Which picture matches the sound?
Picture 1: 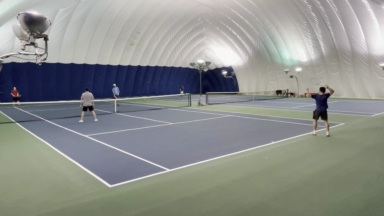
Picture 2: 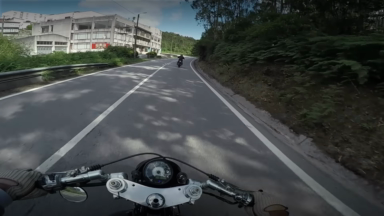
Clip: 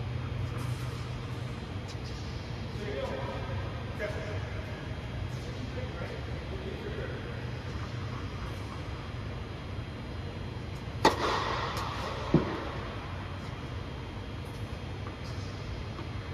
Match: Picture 1